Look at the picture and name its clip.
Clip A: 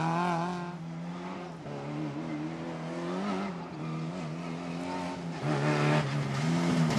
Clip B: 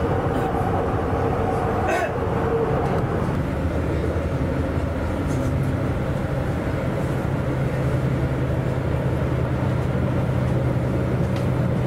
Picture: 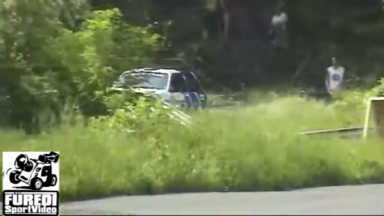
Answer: A